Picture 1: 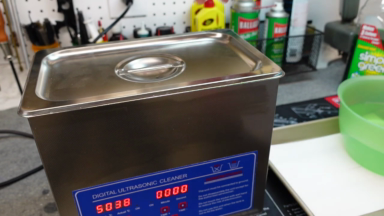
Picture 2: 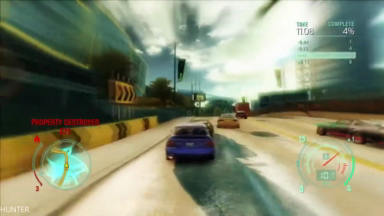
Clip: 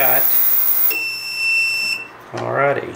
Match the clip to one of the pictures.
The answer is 1